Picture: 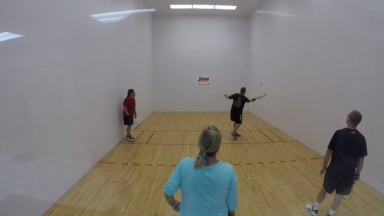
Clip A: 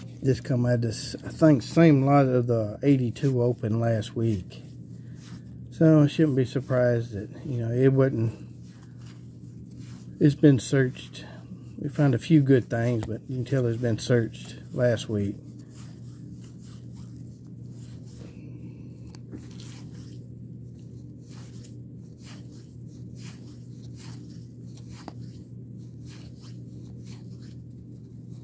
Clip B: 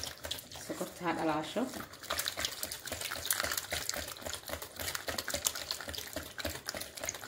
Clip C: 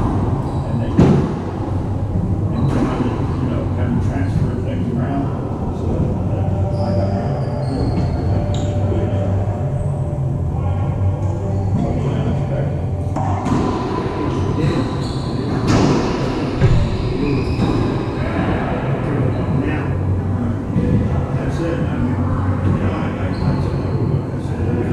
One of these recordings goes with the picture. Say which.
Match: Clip C